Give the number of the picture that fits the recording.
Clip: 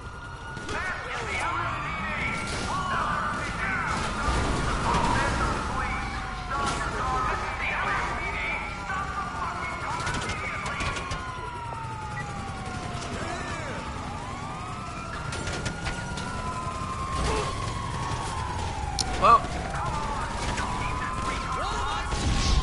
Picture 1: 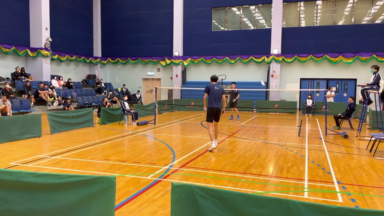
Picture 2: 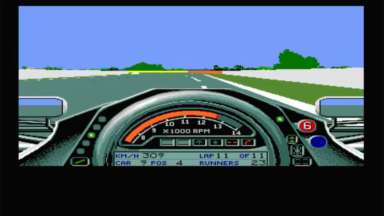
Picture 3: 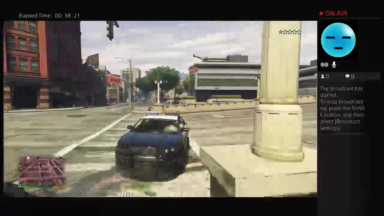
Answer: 3